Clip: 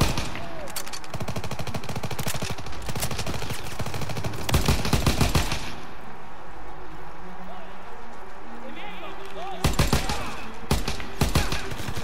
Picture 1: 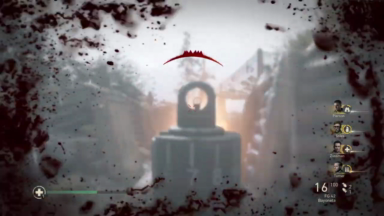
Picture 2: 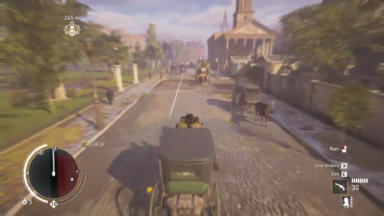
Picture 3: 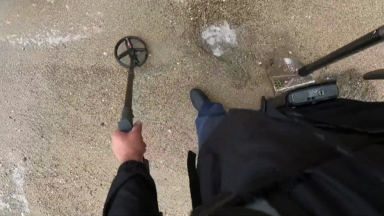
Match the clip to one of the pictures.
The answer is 1